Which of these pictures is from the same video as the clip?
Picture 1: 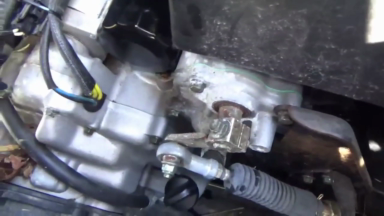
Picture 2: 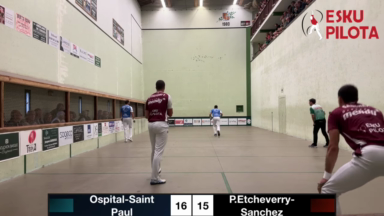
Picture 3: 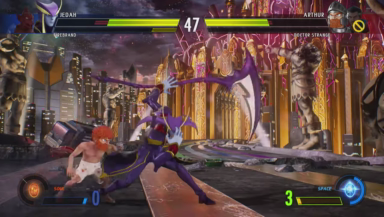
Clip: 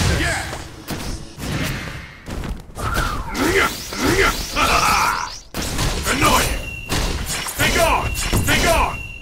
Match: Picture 3